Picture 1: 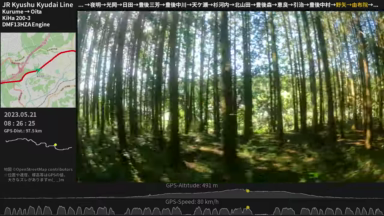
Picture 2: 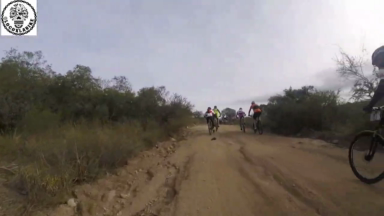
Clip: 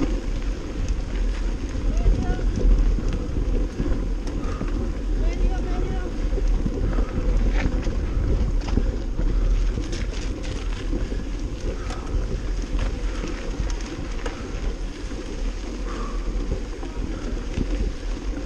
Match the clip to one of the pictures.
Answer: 2